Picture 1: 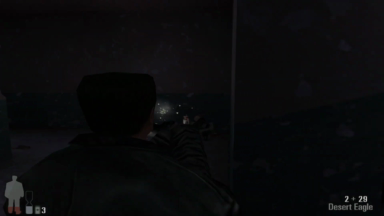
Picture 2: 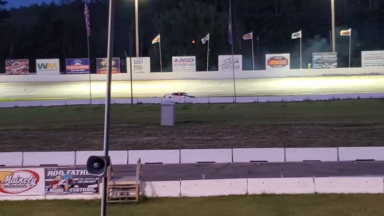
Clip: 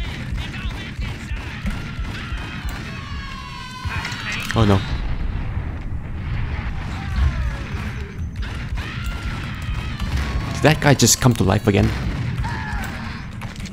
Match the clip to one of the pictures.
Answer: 1